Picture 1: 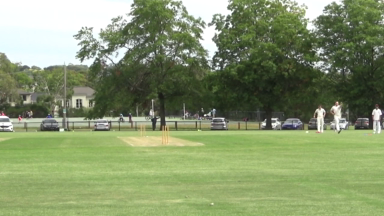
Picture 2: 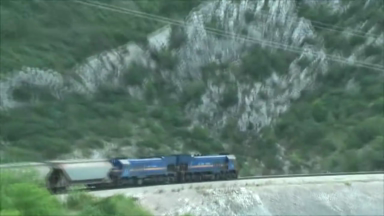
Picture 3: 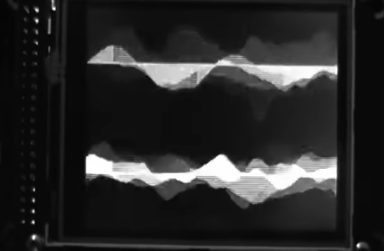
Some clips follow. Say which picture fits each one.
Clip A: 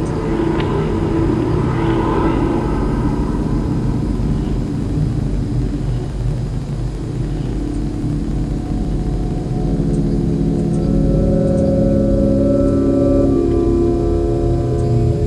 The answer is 3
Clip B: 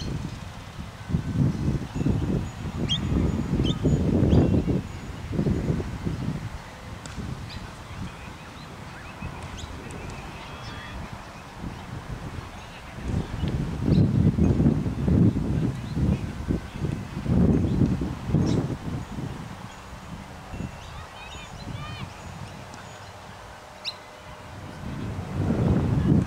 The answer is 1